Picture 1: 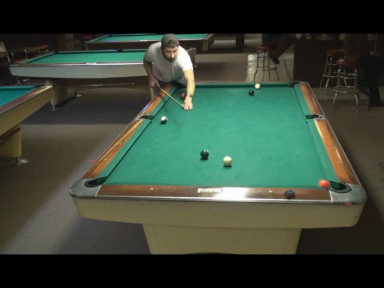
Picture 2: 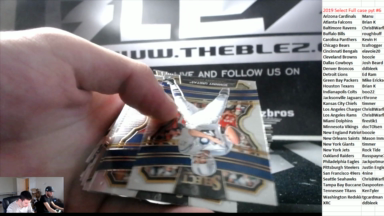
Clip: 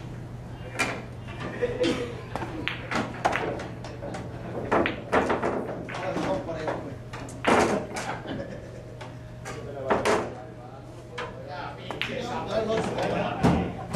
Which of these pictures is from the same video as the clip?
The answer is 1